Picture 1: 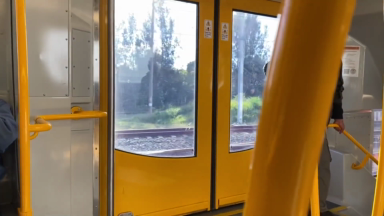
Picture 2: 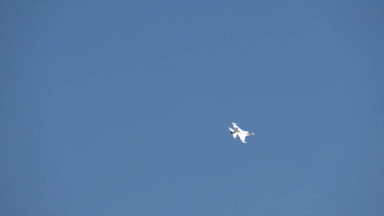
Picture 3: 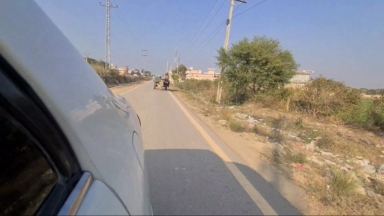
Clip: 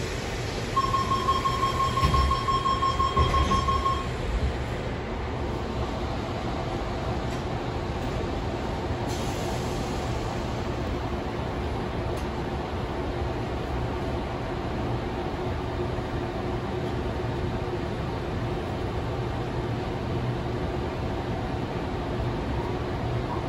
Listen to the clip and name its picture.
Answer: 1